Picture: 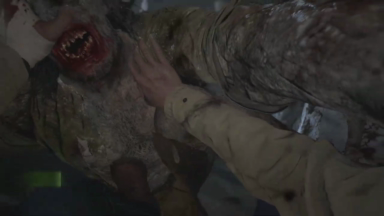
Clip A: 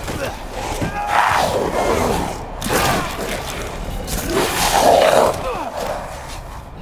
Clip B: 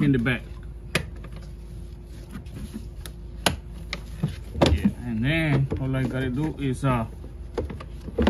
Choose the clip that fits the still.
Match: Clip A